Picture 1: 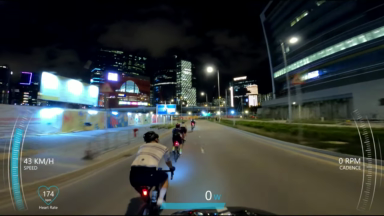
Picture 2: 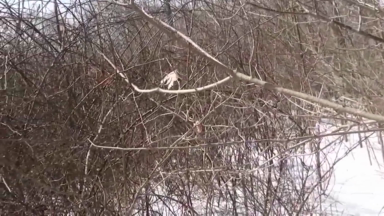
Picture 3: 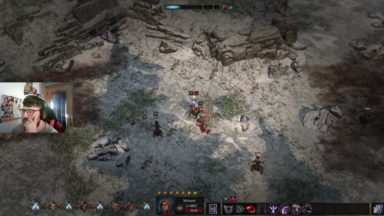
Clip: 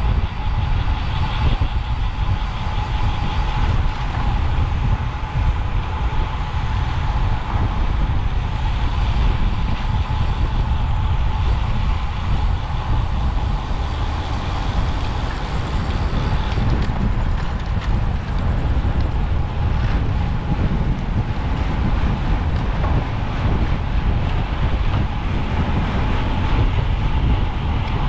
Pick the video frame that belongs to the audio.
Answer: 1